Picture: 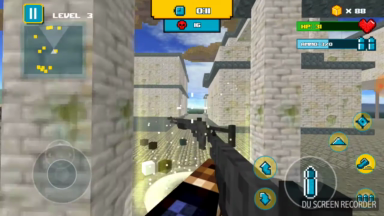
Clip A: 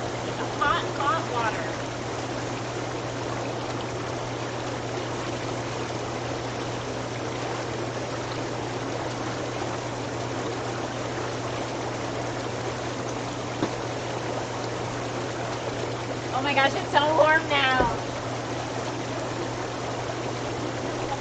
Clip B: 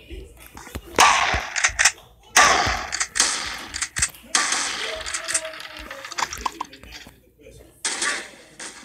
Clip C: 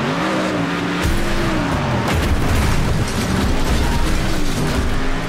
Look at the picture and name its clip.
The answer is B